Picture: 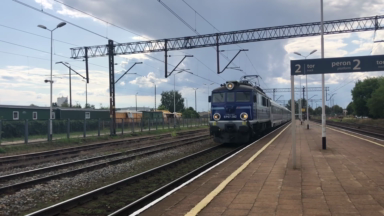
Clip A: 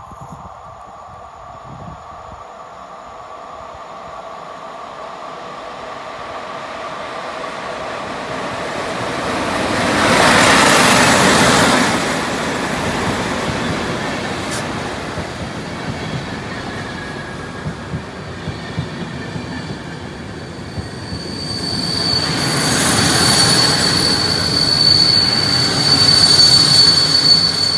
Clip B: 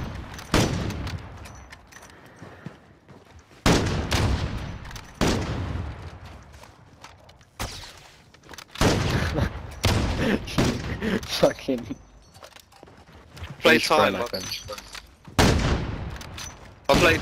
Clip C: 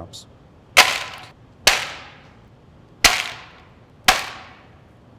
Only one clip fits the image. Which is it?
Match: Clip A